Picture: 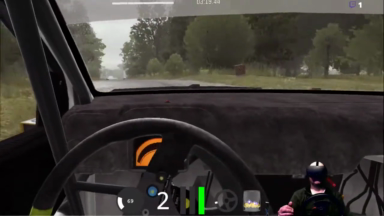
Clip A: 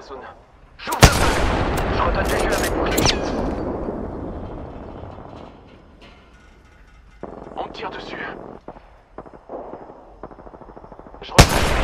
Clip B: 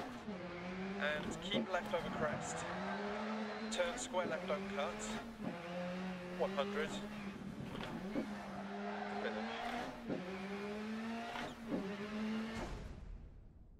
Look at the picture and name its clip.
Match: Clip B